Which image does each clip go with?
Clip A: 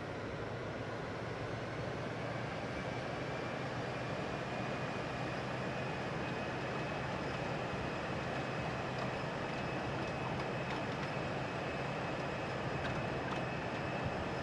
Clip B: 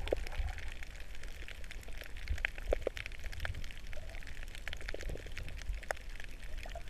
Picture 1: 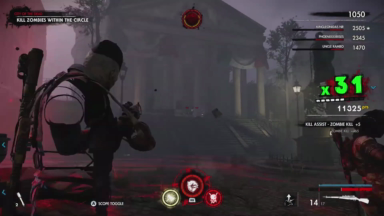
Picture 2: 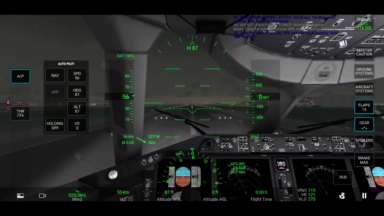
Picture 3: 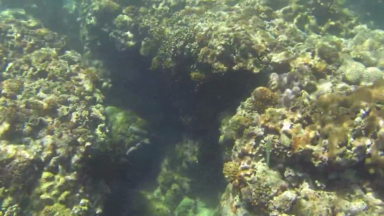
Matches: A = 2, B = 3